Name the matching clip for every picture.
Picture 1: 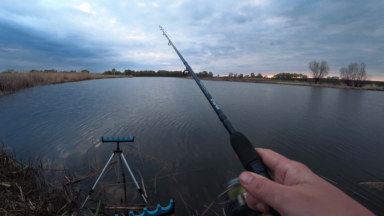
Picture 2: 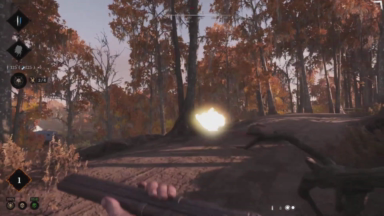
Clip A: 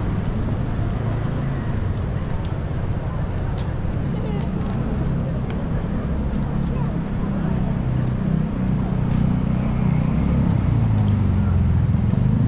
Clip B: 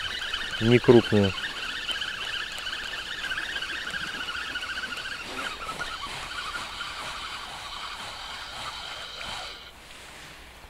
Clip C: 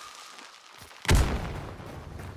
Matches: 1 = B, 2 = C